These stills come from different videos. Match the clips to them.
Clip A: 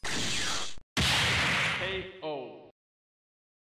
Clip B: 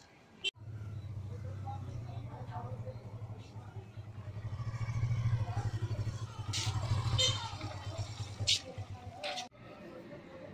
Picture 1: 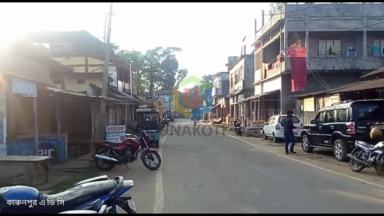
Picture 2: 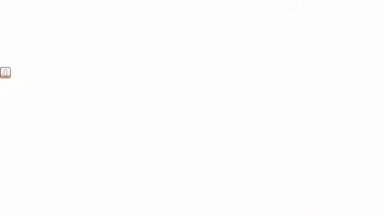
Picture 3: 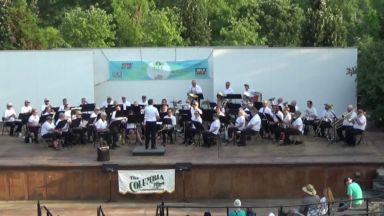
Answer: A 2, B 1